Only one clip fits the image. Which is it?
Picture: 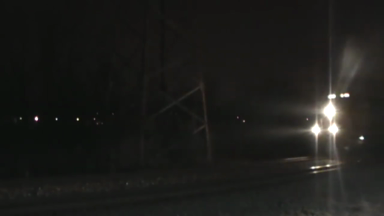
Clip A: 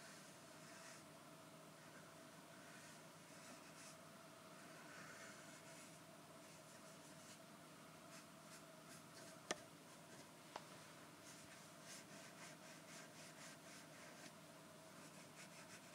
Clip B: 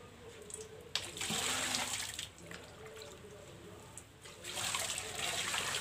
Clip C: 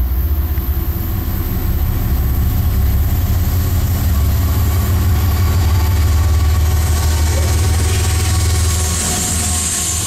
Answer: C